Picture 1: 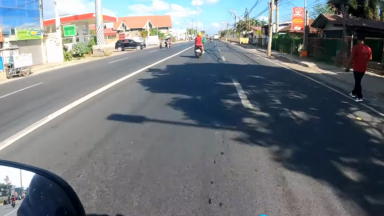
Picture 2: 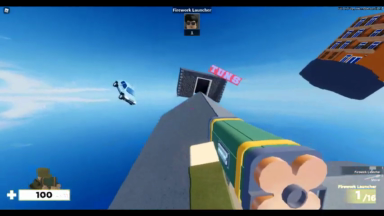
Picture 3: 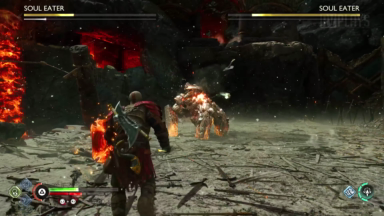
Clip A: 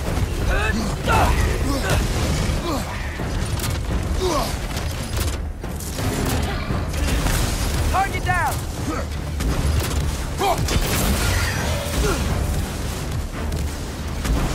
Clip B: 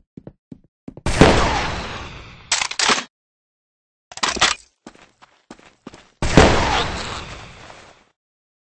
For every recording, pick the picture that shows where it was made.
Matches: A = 3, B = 2